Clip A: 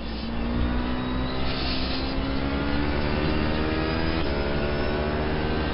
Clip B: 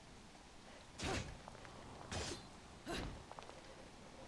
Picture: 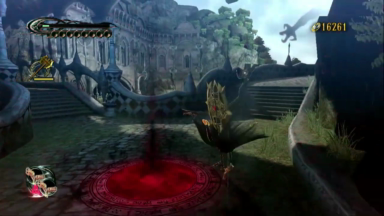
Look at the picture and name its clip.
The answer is B